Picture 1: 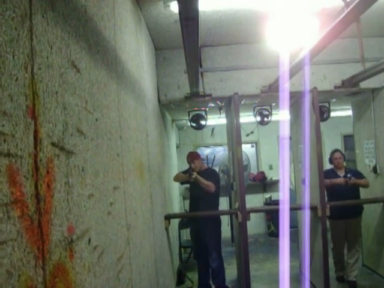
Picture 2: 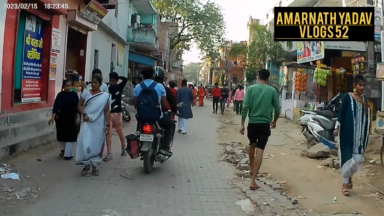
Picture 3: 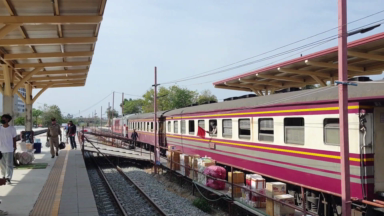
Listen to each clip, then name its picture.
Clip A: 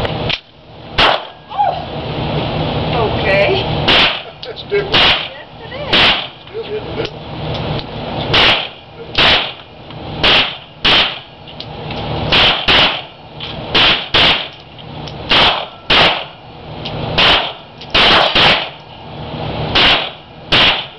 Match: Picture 1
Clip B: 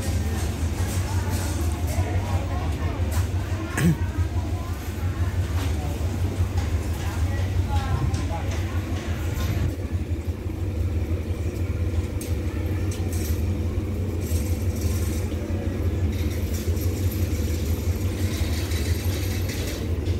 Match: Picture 3